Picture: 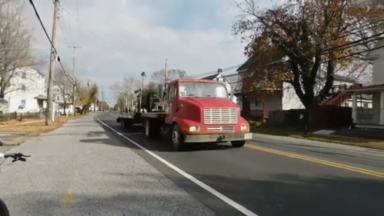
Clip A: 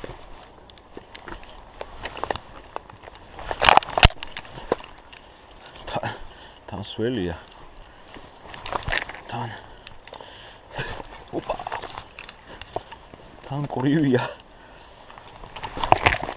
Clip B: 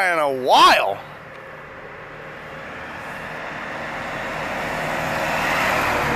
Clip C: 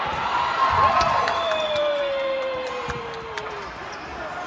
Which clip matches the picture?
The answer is B